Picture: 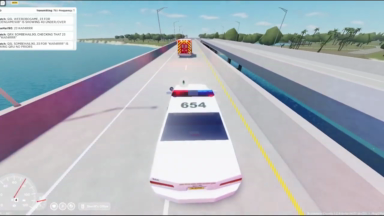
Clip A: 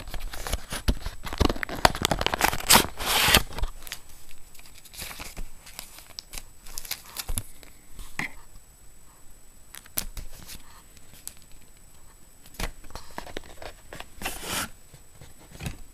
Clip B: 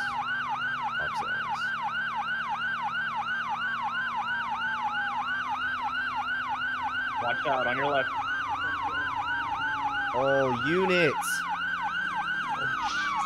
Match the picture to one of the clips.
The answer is B